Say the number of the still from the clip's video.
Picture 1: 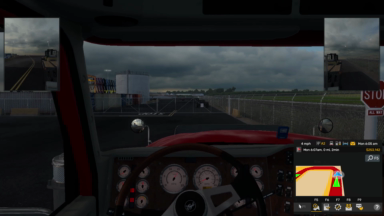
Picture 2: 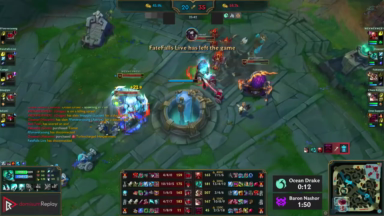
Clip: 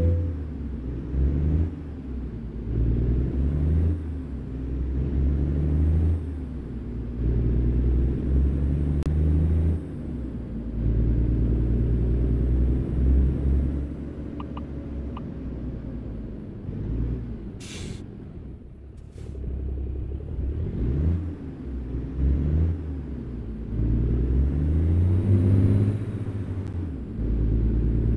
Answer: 1